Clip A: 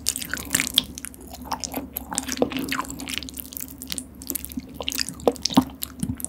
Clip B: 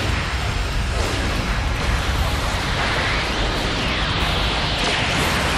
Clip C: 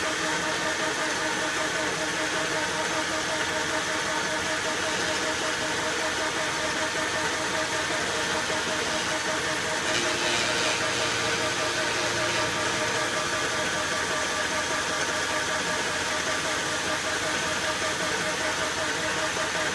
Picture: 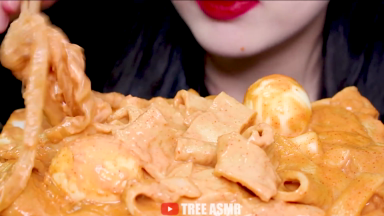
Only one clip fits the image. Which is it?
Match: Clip A